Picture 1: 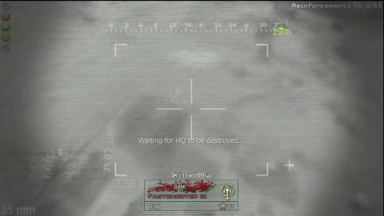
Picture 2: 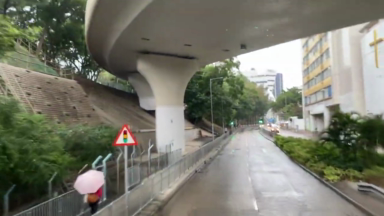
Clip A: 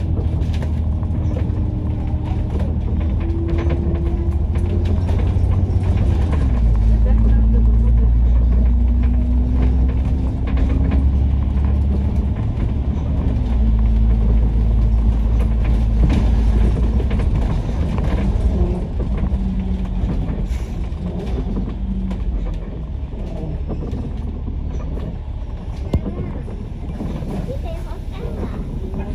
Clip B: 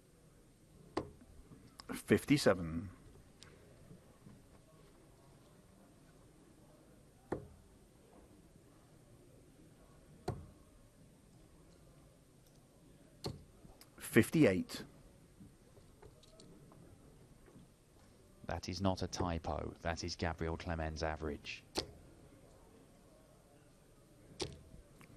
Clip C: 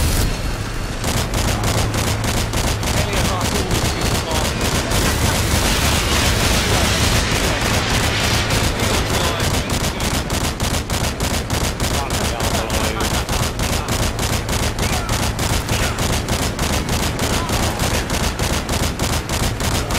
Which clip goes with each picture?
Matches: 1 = C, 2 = A